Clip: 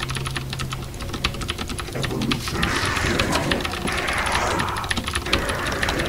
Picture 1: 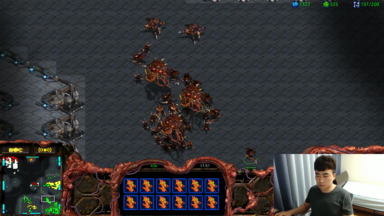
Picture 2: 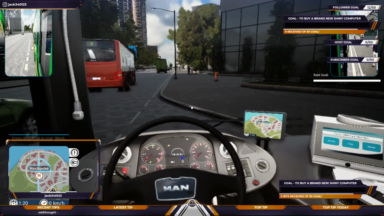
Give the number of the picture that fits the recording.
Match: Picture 1